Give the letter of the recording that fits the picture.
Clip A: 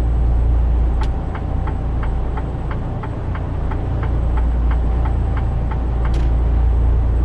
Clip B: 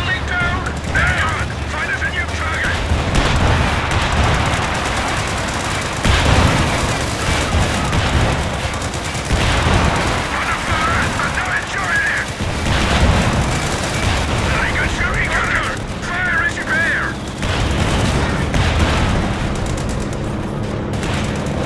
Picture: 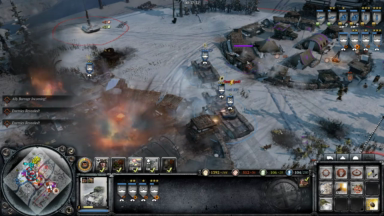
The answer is B